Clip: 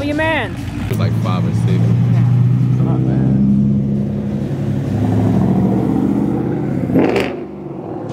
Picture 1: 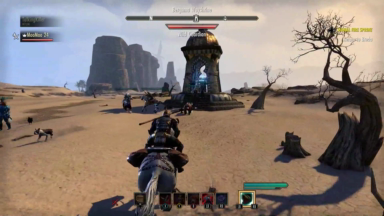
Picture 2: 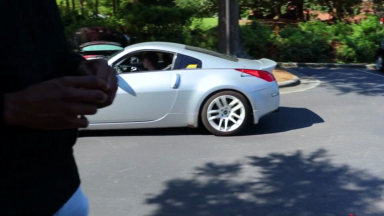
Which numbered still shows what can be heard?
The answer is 2